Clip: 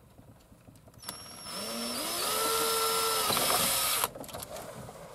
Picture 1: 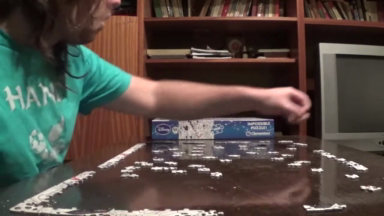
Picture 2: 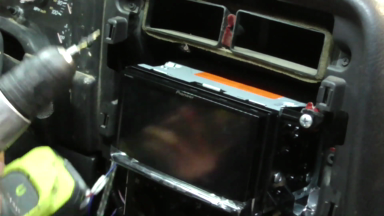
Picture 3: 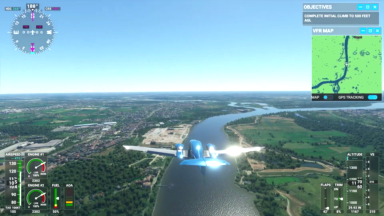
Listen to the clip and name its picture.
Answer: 2